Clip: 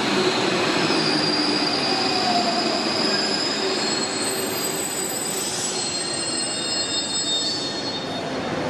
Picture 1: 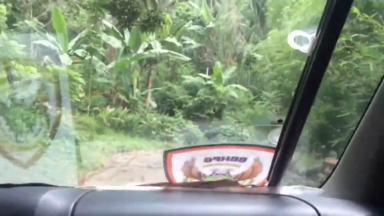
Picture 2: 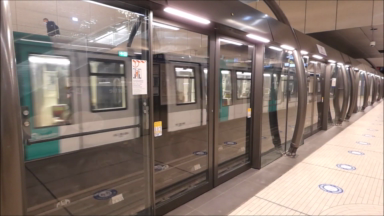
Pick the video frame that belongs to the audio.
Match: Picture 2